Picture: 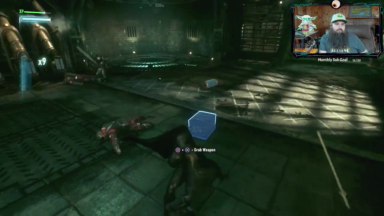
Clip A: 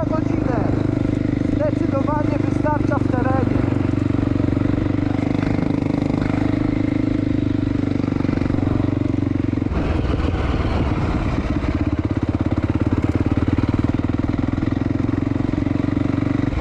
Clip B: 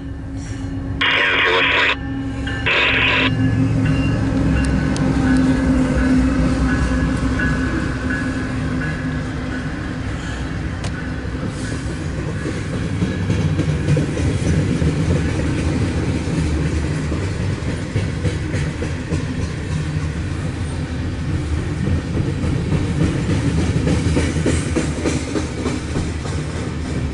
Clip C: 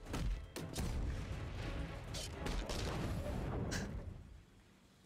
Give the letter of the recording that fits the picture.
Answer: C